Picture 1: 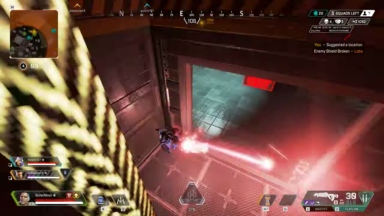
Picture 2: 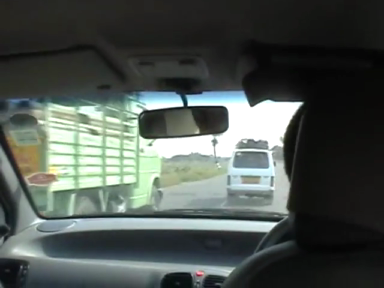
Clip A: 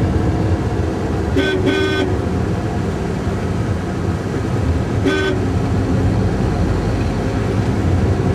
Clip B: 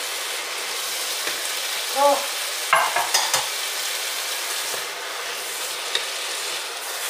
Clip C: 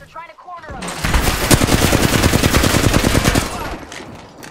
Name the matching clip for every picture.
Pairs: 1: C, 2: A